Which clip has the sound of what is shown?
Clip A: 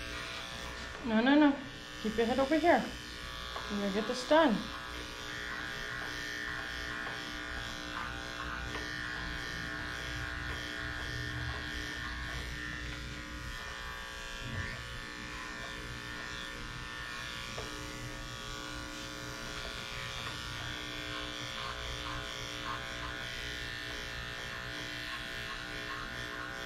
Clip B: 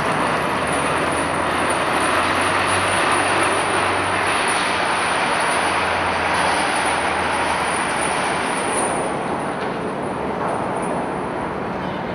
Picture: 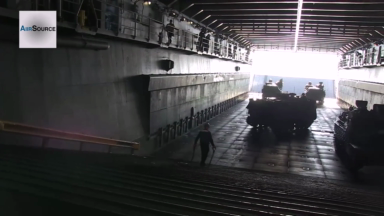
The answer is B